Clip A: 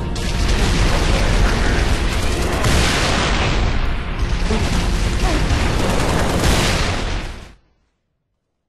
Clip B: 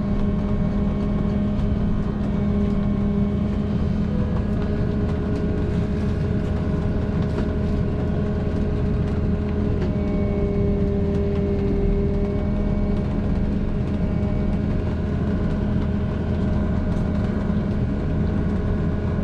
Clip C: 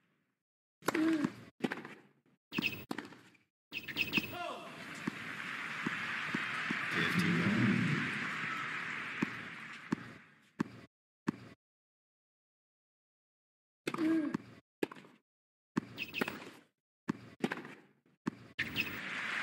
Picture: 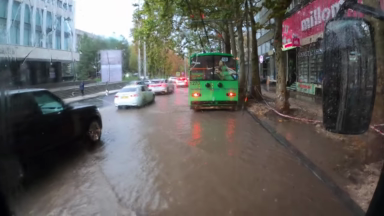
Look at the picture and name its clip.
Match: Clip B